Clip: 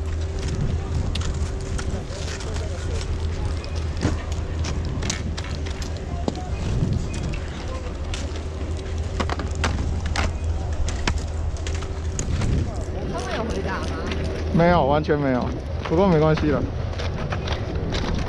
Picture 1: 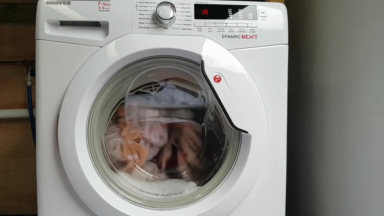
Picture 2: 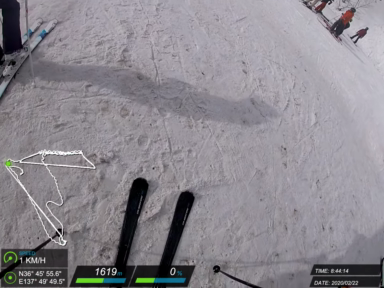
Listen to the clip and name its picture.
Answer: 2